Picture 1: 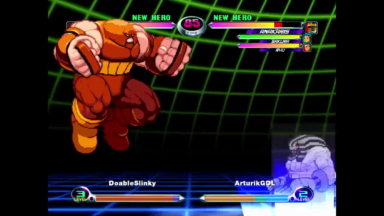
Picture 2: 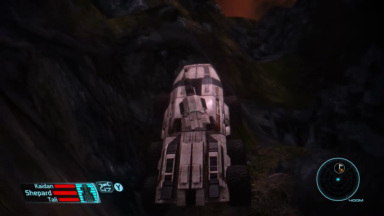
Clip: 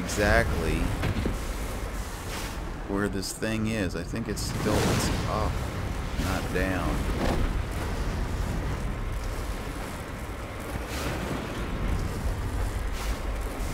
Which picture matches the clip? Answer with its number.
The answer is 2